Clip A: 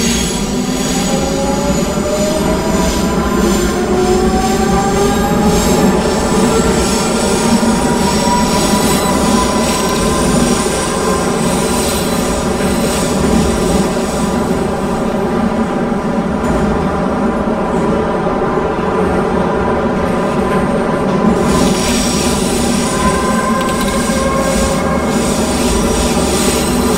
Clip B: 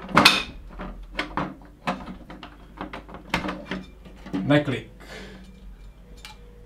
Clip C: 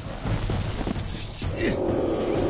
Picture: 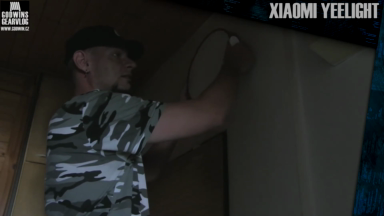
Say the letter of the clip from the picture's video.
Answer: B